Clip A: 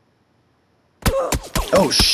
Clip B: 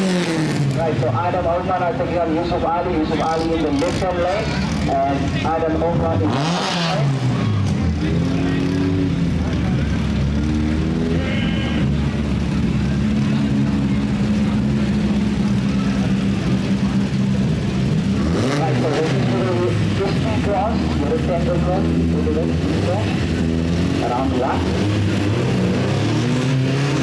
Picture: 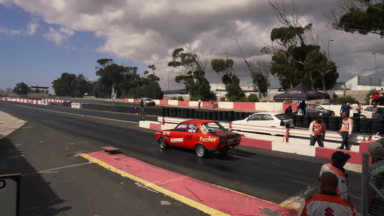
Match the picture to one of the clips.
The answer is B